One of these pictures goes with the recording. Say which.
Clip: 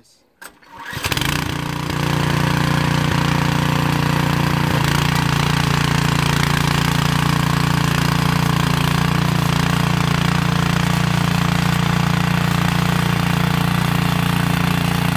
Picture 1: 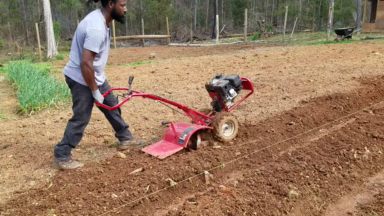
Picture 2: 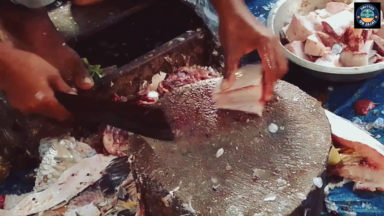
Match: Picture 1